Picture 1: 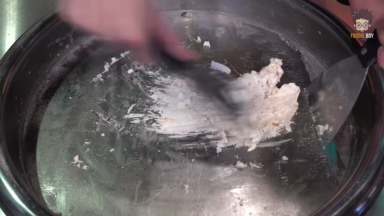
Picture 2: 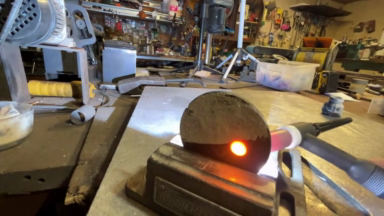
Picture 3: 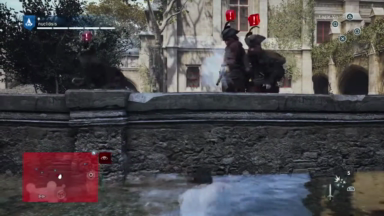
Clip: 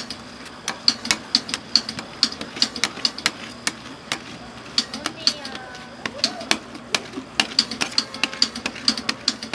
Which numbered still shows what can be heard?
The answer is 1